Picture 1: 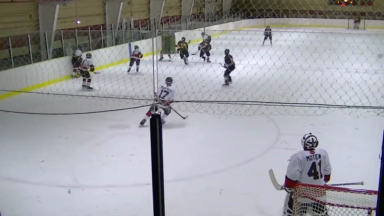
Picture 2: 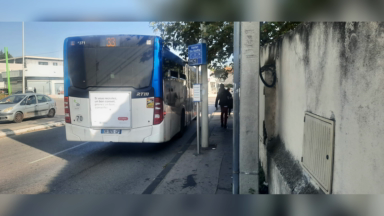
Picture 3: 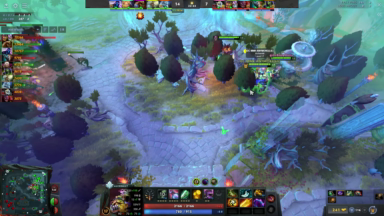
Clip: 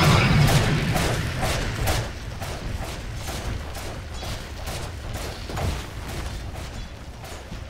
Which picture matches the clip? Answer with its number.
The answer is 3